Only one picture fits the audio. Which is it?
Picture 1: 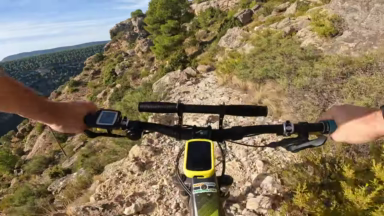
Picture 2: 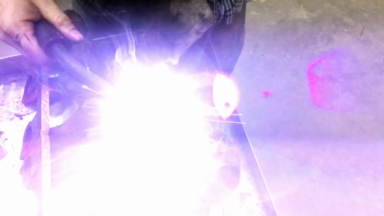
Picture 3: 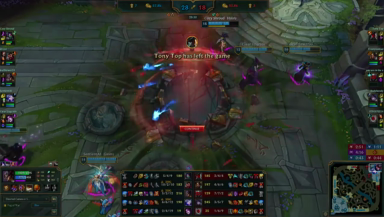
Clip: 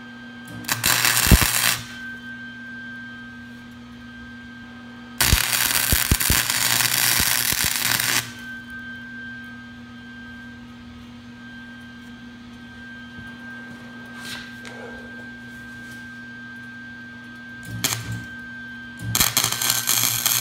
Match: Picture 2